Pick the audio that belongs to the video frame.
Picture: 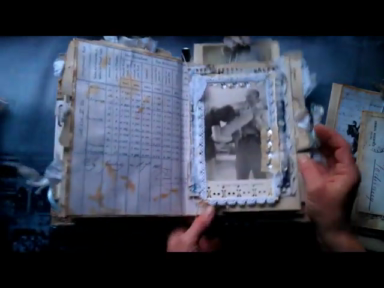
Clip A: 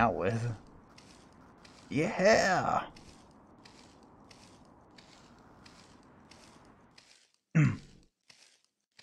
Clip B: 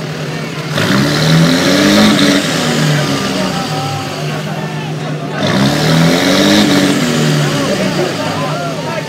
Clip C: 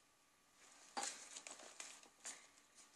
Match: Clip C